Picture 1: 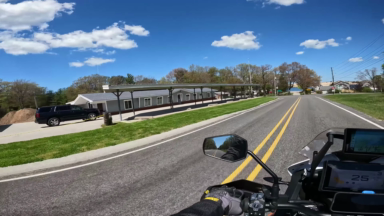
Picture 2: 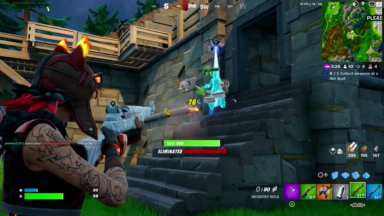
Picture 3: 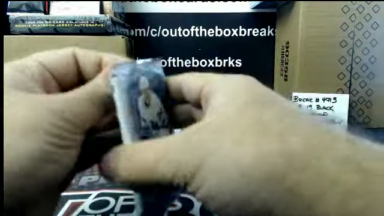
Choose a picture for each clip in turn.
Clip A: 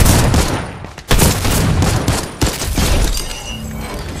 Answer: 2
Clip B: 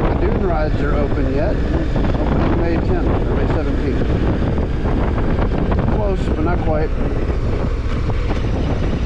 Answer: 1